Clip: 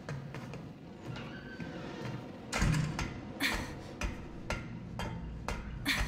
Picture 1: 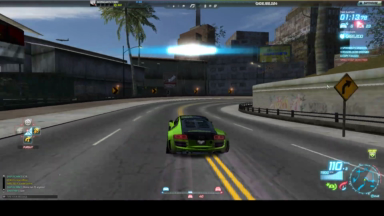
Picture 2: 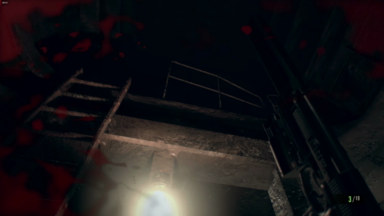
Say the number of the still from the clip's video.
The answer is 2